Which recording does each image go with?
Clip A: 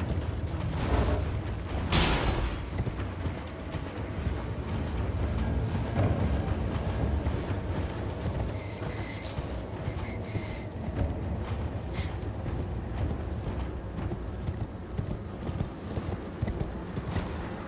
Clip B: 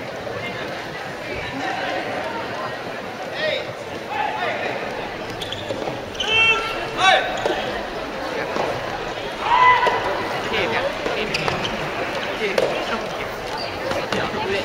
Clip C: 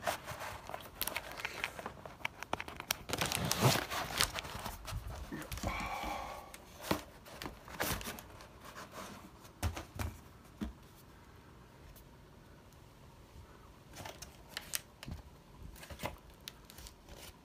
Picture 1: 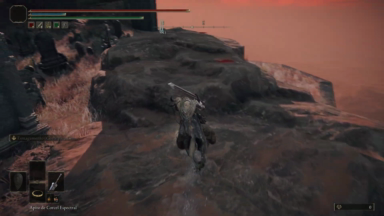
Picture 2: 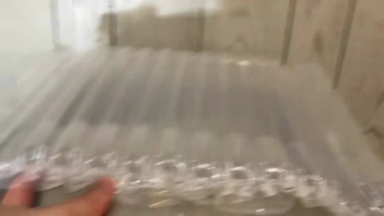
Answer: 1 A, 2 C